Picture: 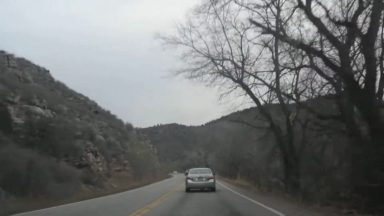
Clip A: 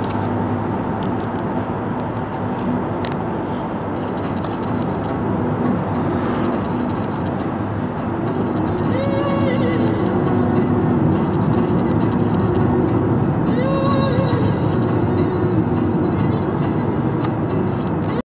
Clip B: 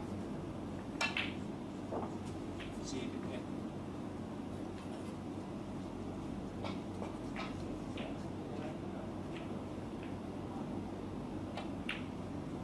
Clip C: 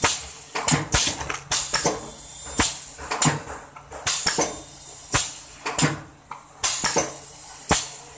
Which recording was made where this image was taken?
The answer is A